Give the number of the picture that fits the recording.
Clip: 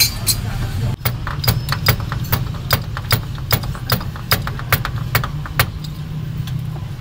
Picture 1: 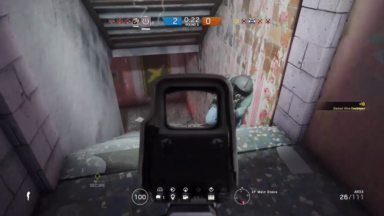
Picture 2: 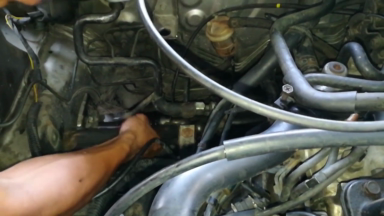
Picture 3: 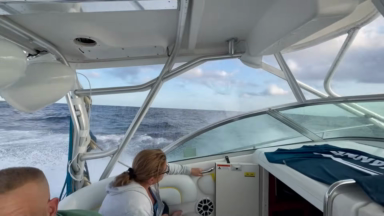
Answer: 2